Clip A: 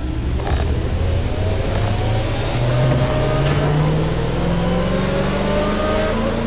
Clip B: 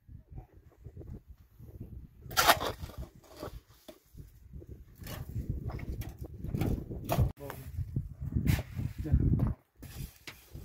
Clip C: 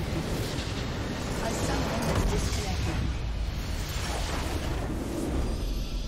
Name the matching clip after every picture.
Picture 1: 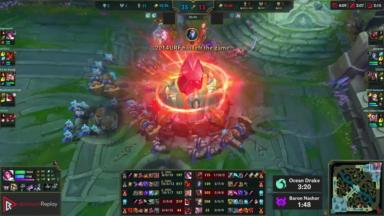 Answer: C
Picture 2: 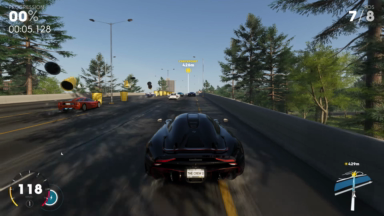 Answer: A